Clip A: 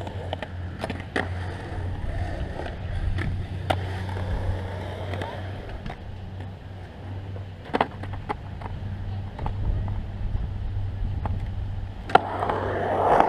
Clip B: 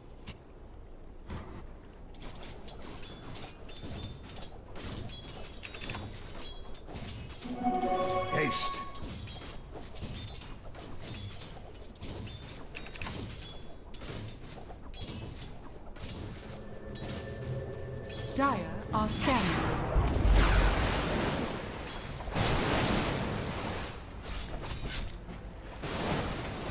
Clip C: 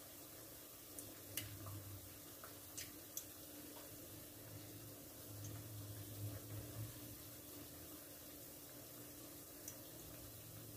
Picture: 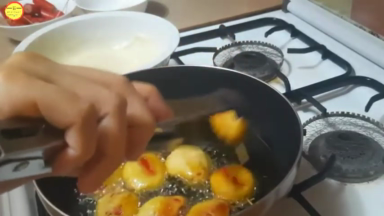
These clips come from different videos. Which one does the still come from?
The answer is C